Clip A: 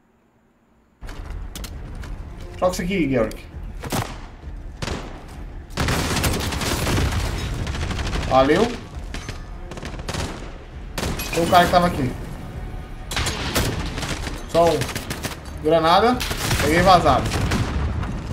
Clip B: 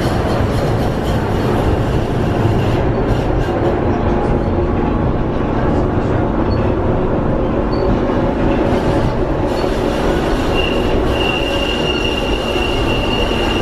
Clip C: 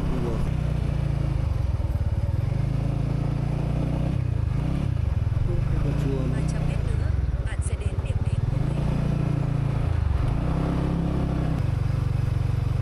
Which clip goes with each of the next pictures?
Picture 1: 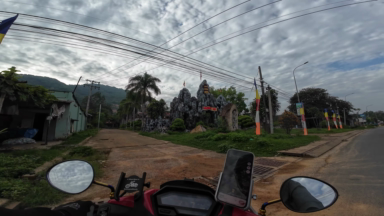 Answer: C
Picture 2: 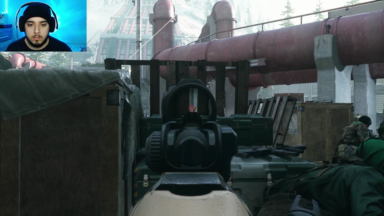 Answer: A